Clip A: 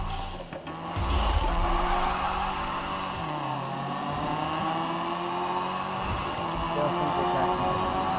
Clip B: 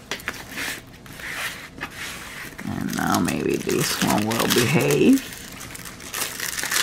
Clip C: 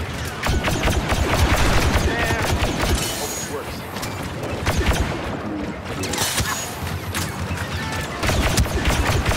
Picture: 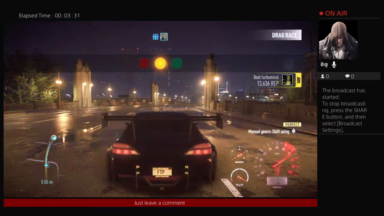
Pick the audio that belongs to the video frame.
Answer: A